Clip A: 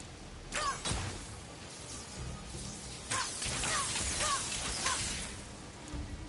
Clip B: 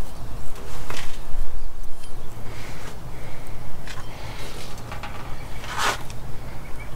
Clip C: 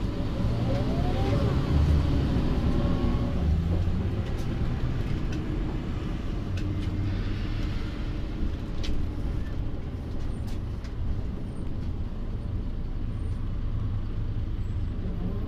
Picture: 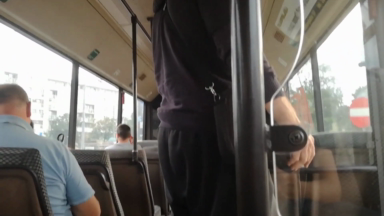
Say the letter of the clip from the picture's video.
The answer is C